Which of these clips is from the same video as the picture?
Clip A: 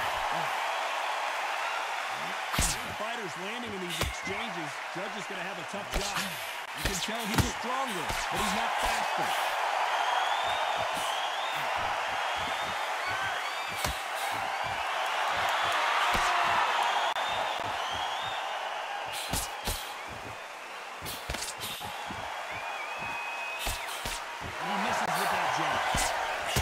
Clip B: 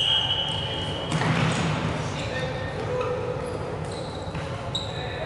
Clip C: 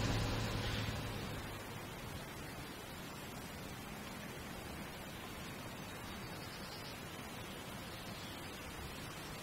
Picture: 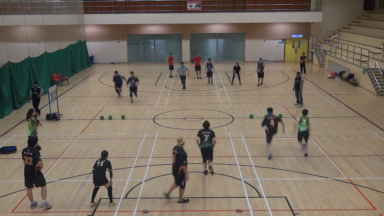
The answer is B